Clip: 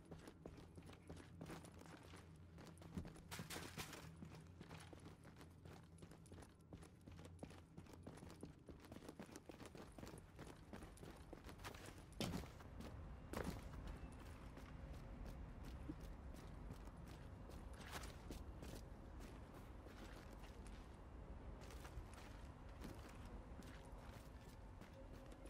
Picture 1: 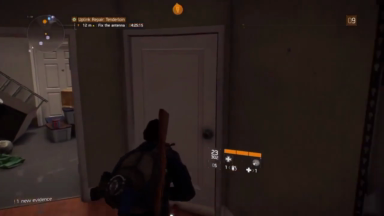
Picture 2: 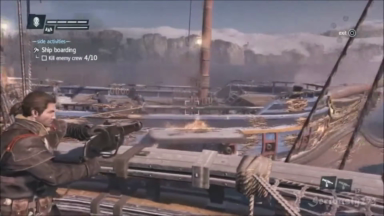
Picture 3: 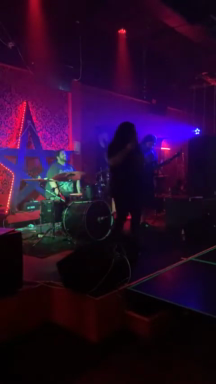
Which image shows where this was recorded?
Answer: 1